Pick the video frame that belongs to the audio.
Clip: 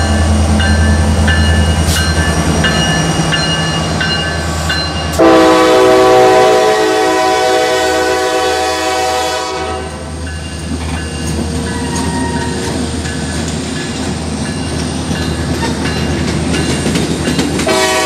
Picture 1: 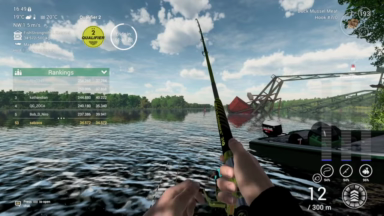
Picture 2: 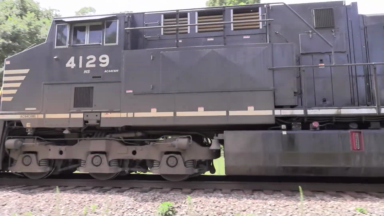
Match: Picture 2